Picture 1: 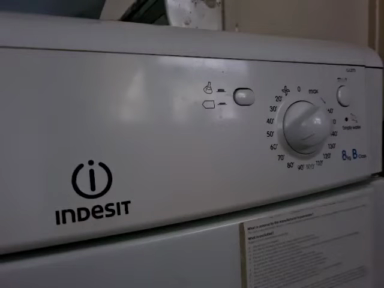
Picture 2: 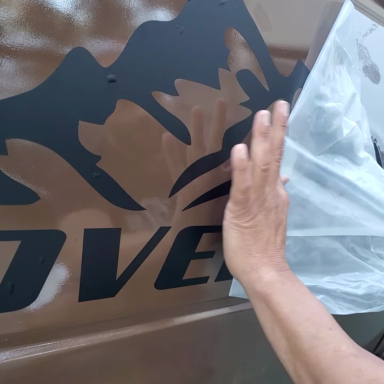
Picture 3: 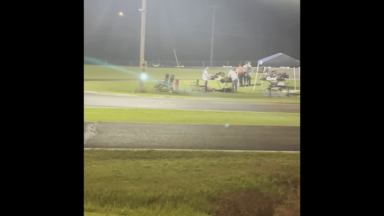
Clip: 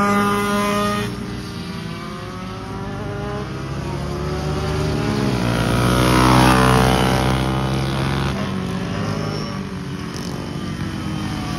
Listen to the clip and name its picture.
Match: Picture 3